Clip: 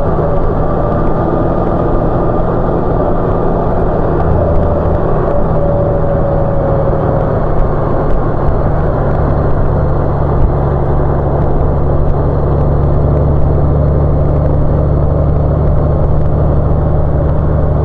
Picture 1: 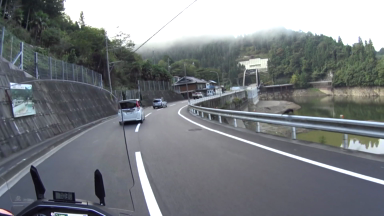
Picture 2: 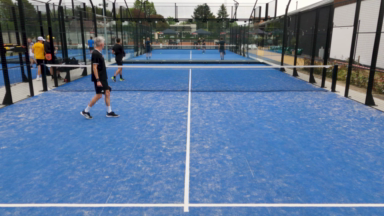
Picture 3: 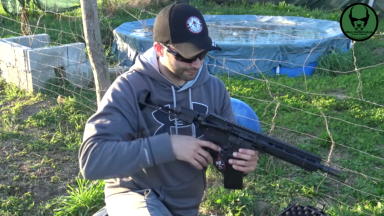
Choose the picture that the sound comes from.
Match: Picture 1